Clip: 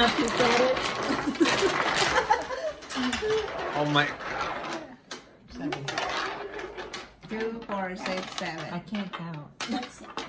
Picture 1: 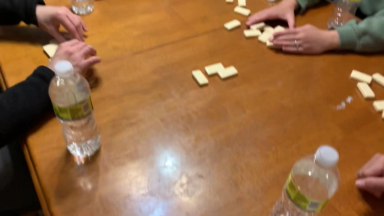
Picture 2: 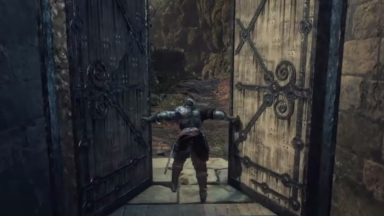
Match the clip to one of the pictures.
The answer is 1